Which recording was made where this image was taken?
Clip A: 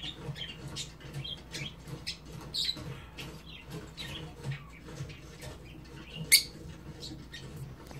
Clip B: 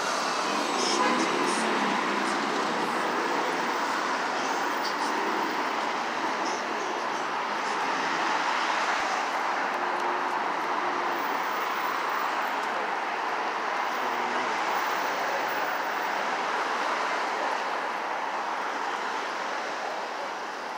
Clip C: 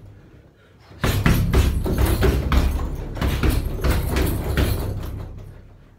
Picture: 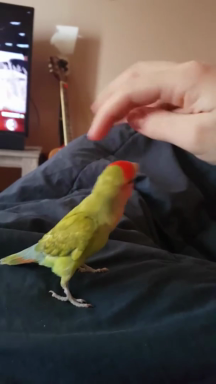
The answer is A